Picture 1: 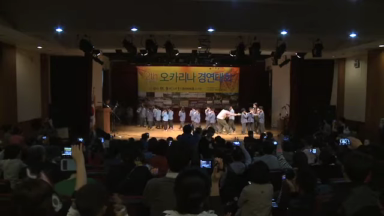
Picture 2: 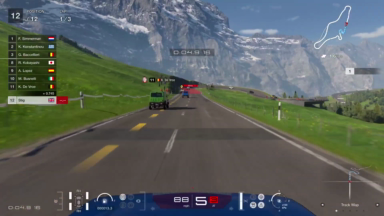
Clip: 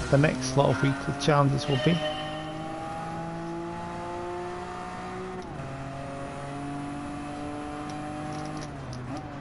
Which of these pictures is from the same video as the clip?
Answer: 2